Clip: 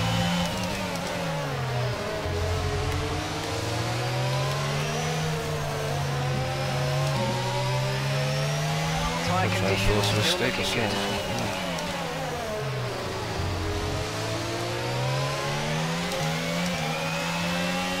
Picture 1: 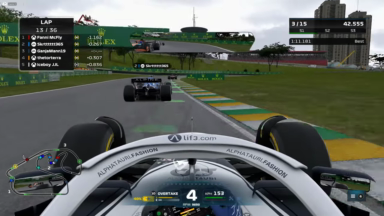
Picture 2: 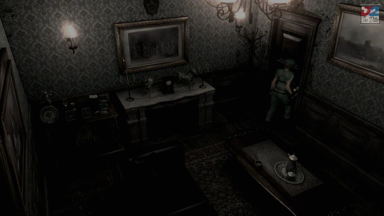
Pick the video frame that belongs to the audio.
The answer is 1